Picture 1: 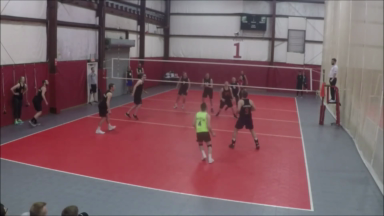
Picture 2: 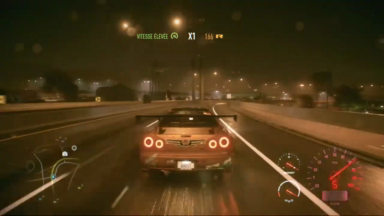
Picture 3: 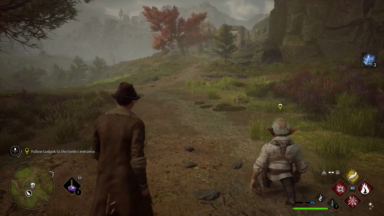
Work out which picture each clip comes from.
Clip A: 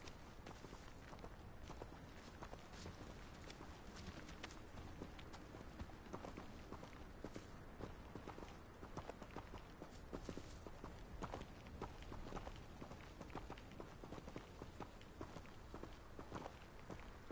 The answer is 3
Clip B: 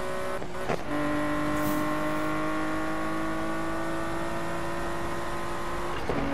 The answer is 2